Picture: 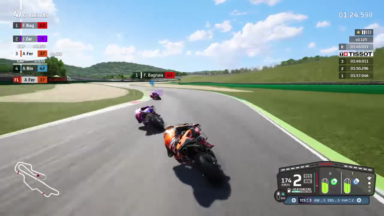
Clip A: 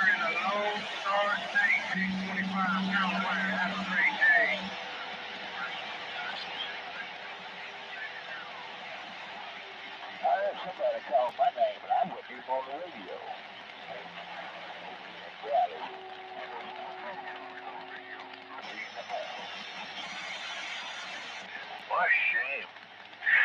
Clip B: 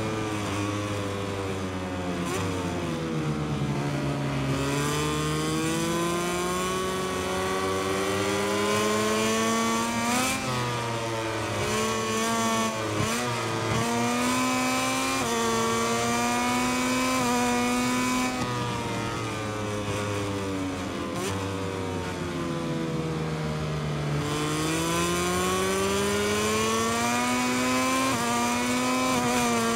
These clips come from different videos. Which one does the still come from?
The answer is B